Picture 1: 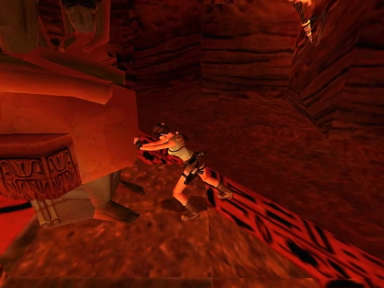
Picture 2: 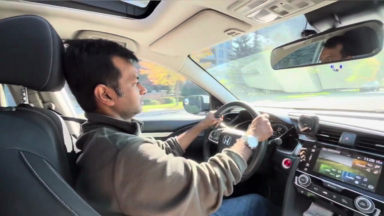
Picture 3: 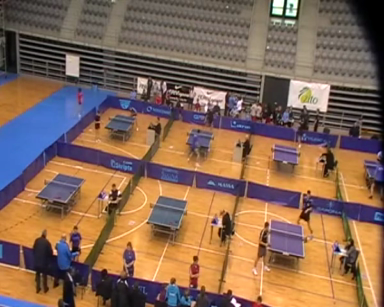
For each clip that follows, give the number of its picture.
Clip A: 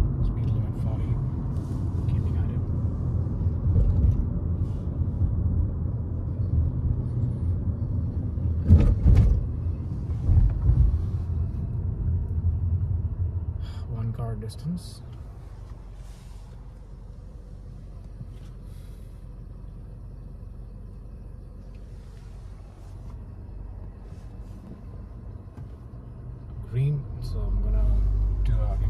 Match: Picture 2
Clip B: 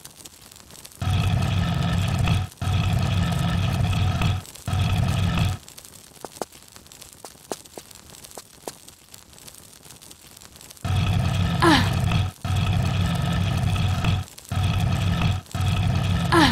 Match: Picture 1